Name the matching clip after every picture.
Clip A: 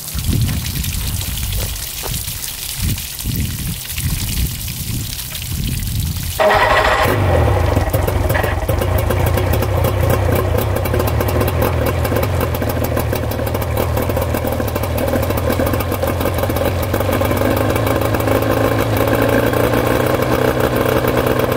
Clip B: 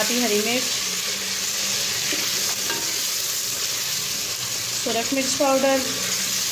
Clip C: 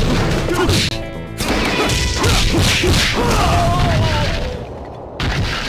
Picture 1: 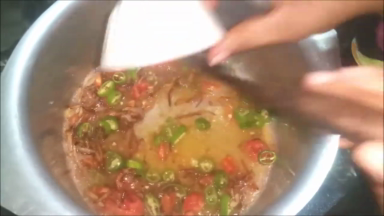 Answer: B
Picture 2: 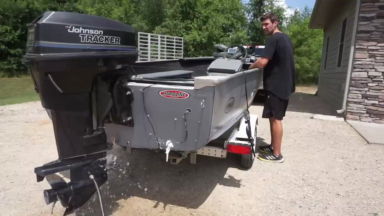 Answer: A